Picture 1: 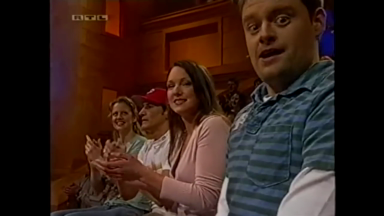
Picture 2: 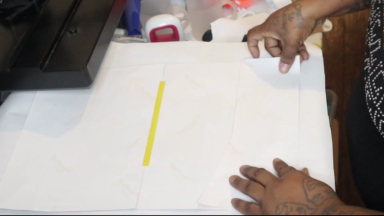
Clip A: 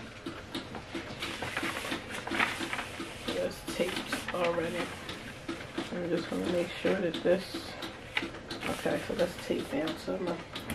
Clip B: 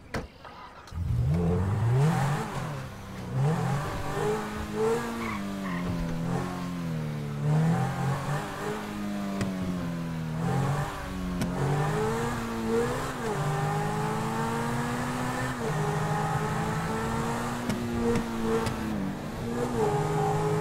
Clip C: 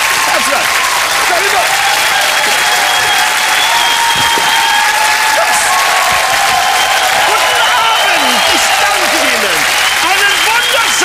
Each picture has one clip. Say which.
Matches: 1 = C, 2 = A